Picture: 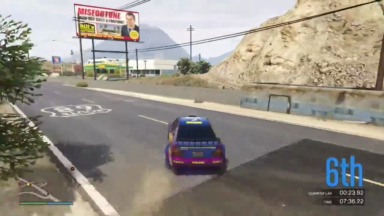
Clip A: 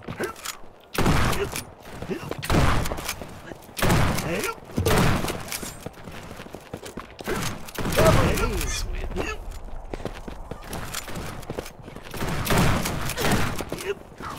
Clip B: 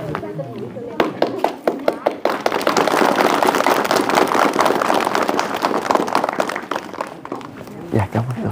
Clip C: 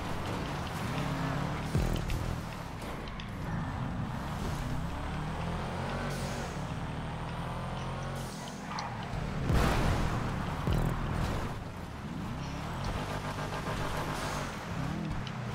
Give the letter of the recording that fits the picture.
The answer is C